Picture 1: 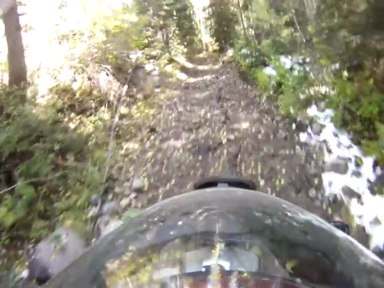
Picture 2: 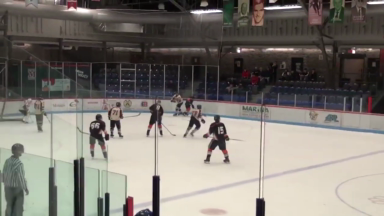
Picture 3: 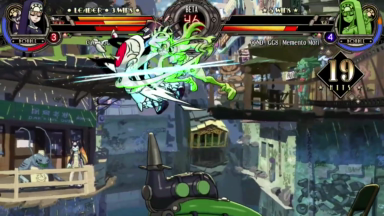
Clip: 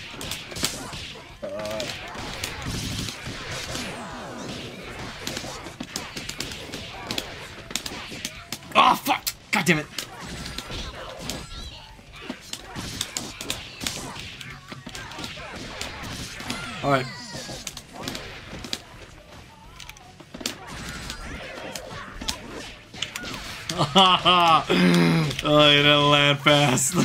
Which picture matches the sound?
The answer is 3